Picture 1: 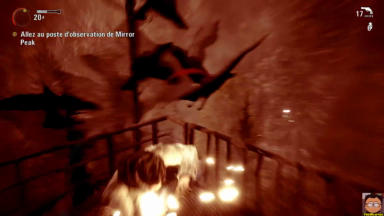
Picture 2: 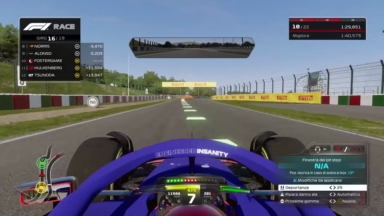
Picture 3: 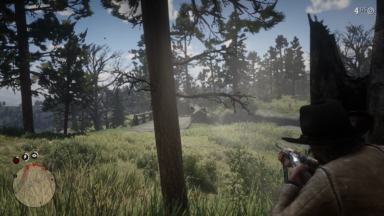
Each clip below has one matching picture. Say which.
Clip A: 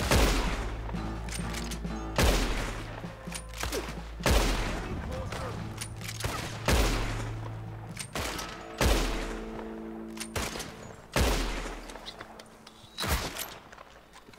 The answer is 3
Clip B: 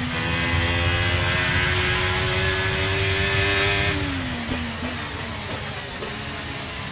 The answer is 2